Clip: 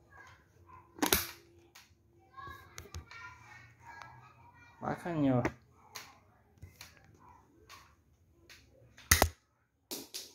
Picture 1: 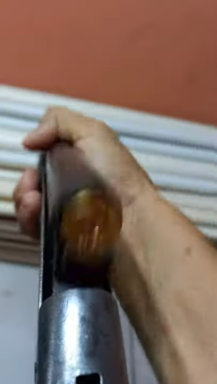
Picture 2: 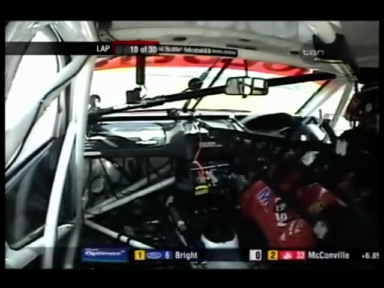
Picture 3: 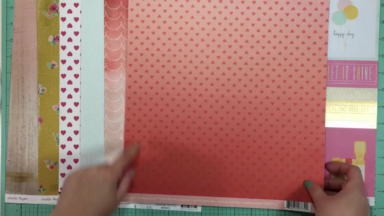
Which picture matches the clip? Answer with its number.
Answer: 1